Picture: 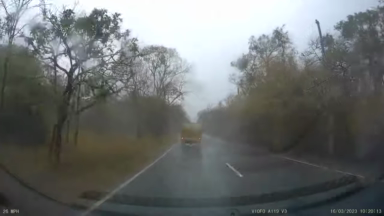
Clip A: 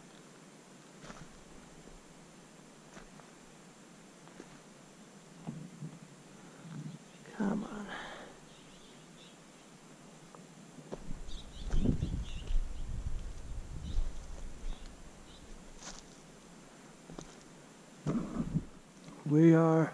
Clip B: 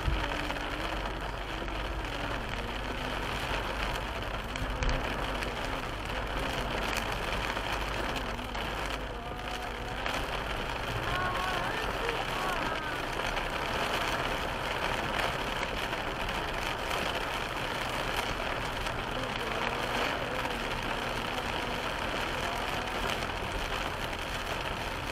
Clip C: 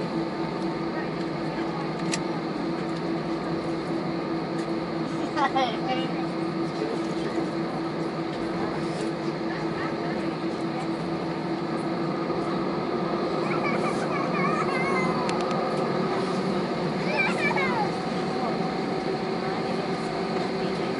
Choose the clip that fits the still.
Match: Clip B